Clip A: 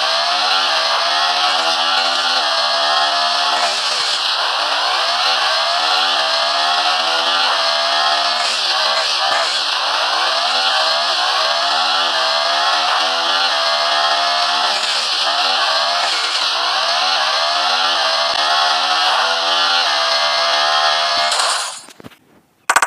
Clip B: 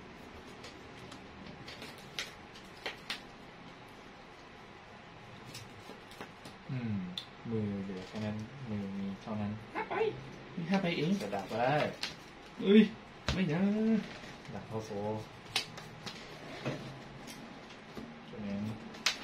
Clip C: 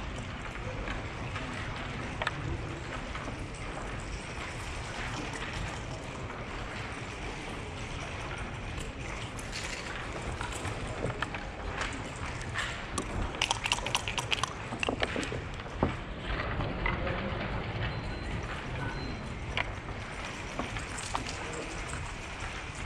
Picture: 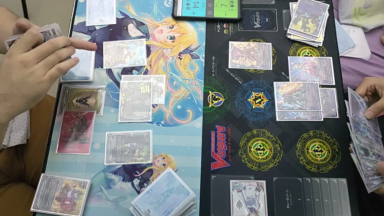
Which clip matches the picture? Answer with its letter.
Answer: B